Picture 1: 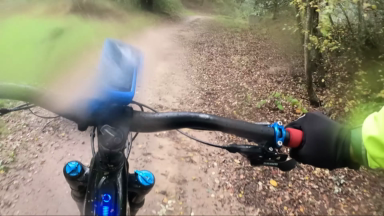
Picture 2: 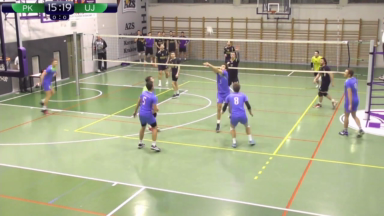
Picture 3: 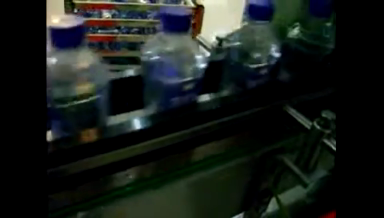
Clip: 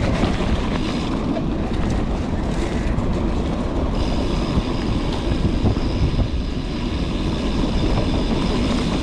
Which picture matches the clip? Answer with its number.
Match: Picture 1